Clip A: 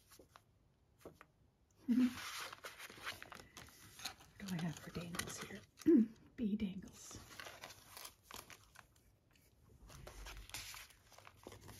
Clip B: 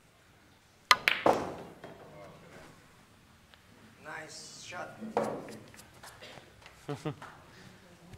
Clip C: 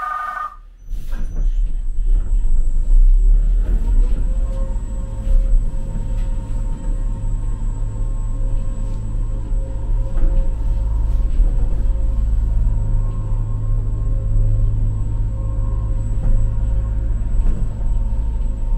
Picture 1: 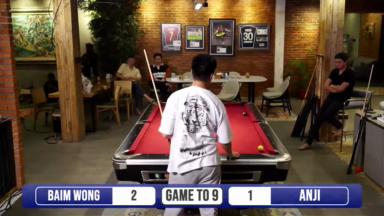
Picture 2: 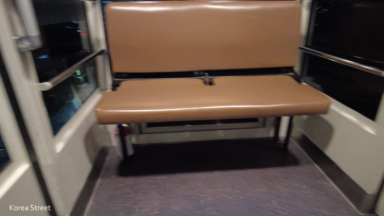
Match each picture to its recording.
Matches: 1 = B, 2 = C